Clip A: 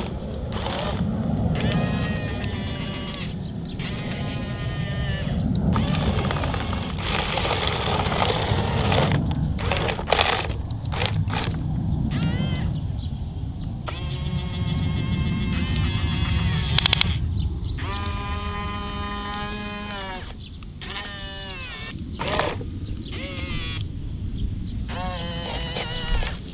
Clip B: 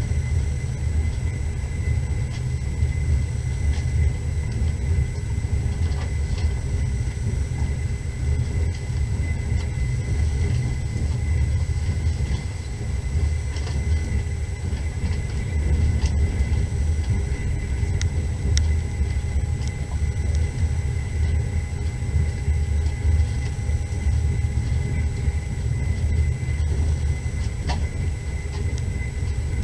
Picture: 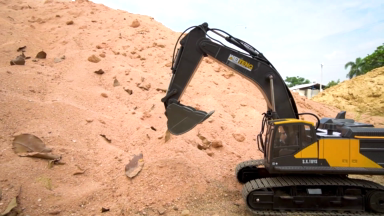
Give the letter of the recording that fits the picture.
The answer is A